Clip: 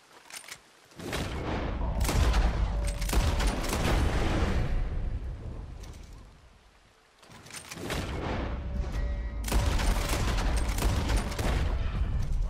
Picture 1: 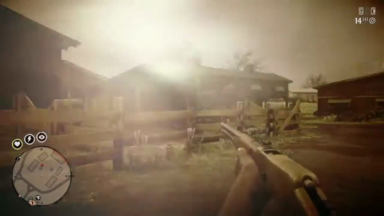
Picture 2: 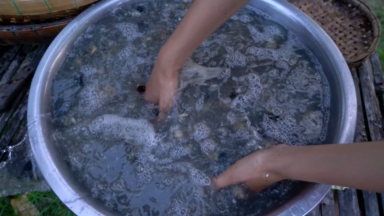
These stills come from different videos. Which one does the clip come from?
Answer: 1